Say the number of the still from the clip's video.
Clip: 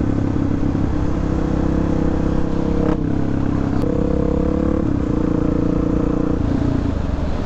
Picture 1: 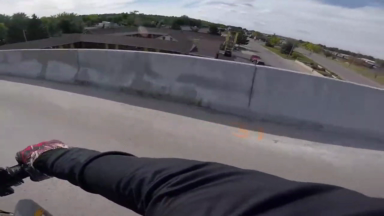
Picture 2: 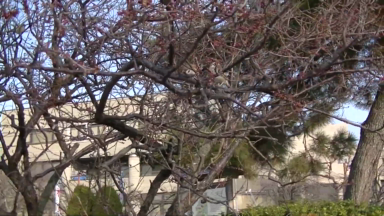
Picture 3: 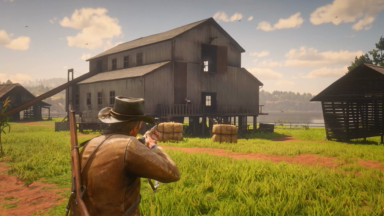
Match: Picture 1